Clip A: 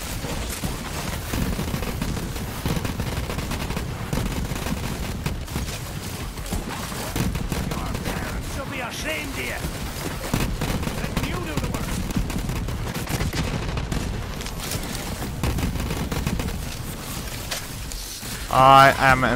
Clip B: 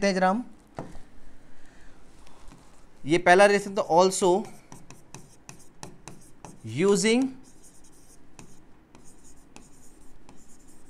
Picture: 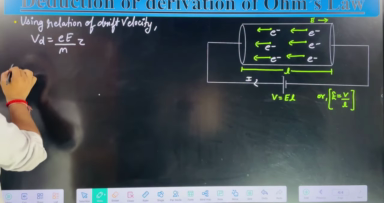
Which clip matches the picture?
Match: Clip B